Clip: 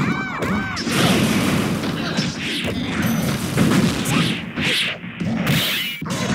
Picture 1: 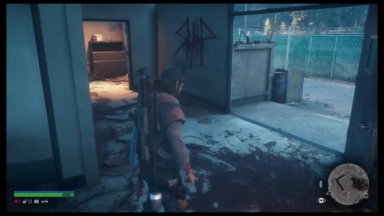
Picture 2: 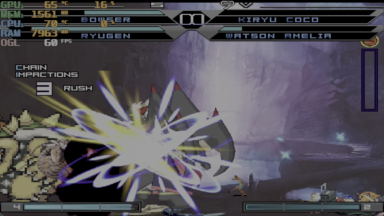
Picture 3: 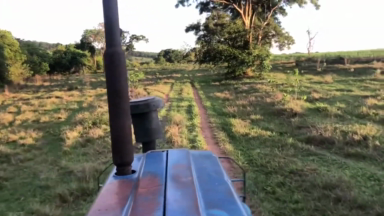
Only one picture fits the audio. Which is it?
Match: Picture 2